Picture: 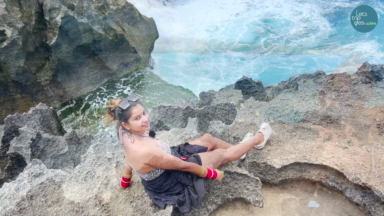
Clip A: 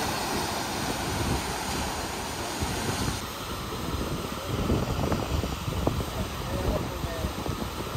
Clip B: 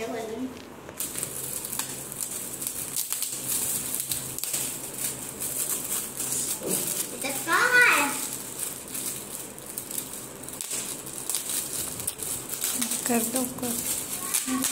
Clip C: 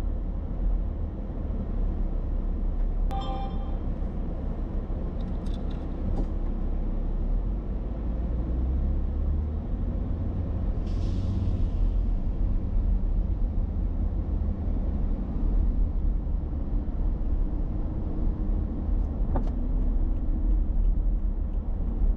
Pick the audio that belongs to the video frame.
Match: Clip A